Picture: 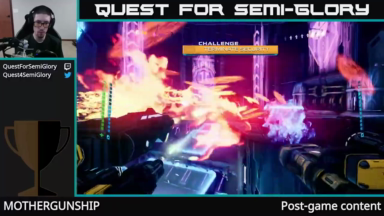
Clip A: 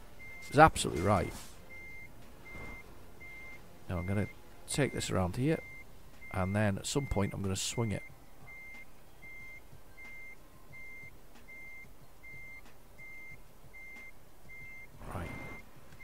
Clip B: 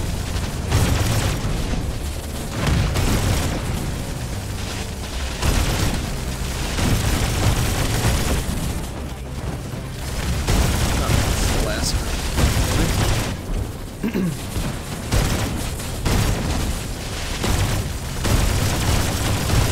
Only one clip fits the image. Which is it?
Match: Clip B